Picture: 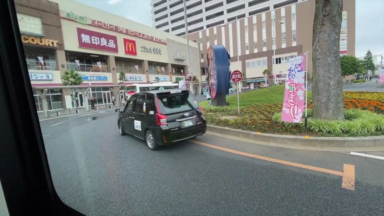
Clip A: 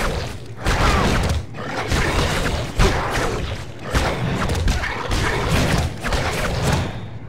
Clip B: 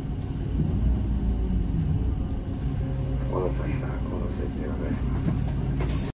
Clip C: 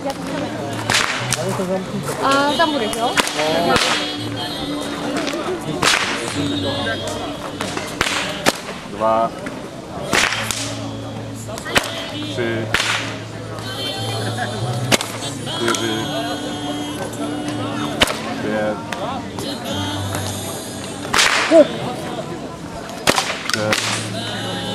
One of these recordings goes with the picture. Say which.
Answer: B